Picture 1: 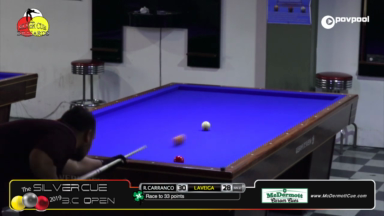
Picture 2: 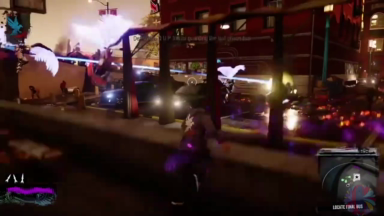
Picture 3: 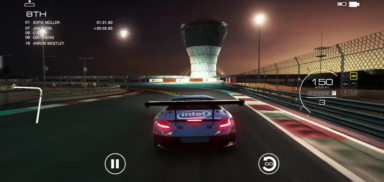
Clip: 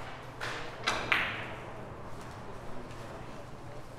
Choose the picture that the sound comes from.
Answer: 1